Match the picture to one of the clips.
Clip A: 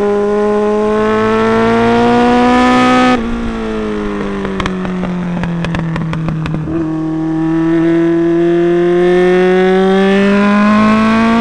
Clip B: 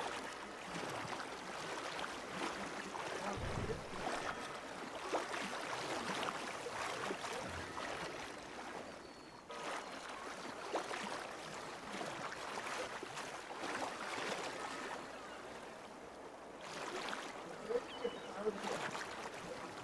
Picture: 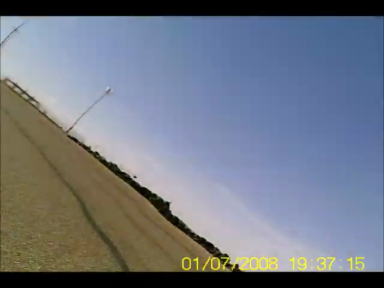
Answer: A